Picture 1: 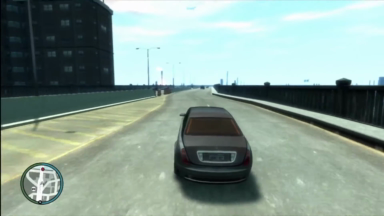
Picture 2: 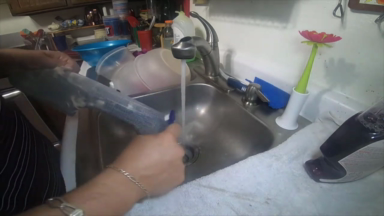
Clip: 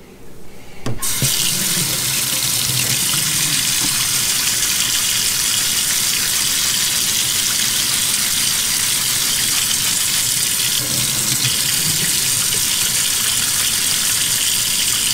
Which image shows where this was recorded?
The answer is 2